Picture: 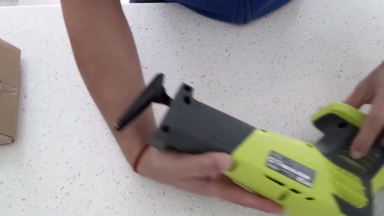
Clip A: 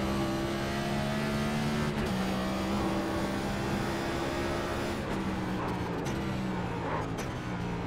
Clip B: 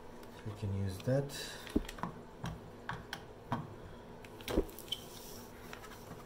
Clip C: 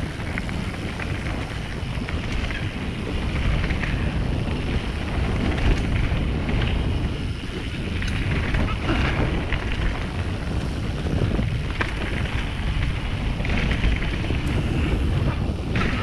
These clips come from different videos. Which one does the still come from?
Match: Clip B